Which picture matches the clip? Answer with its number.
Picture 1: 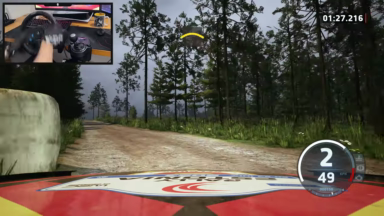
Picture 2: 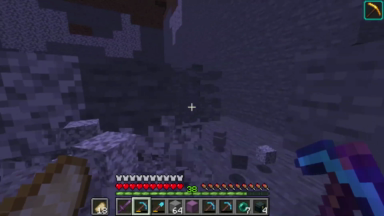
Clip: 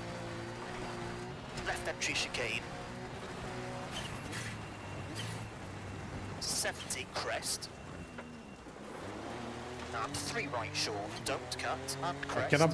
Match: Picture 1